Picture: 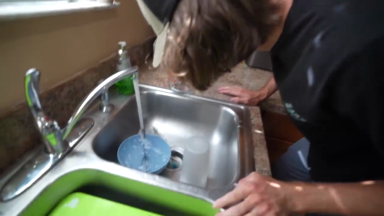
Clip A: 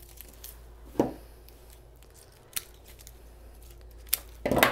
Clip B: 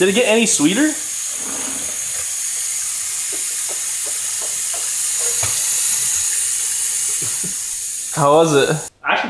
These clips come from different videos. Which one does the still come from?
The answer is B